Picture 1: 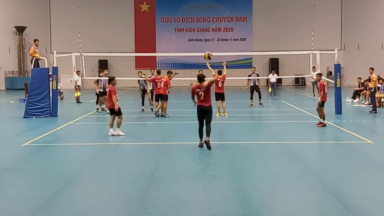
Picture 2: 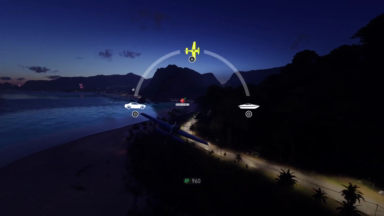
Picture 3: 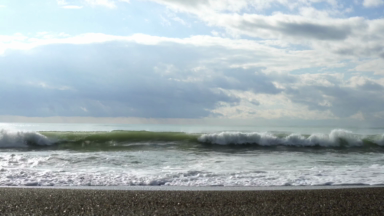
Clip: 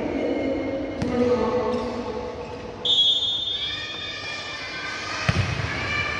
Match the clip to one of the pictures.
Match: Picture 1